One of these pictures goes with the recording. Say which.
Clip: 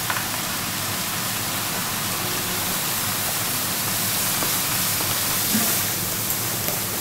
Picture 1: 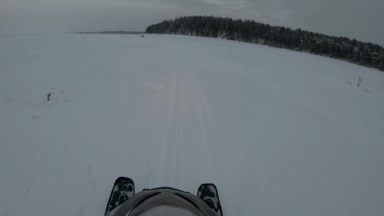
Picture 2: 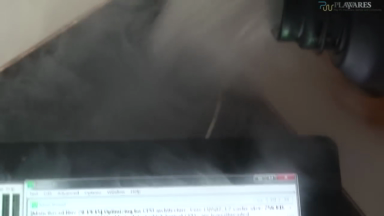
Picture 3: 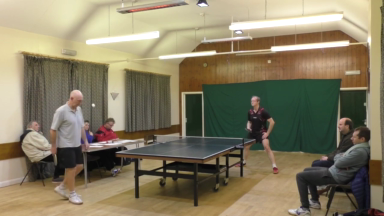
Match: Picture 2